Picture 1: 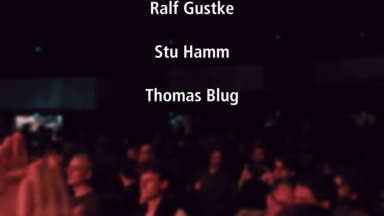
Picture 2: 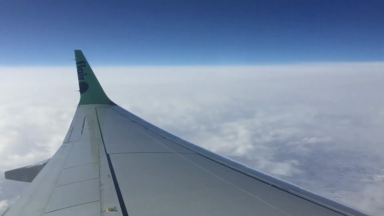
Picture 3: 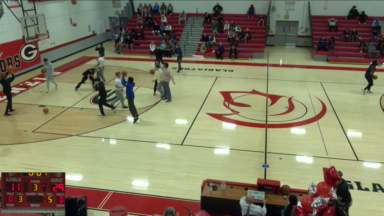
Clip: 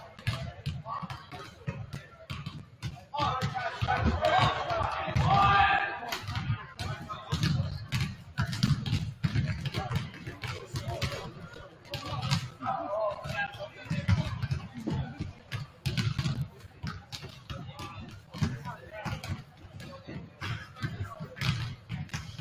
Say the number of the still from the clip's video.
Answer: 3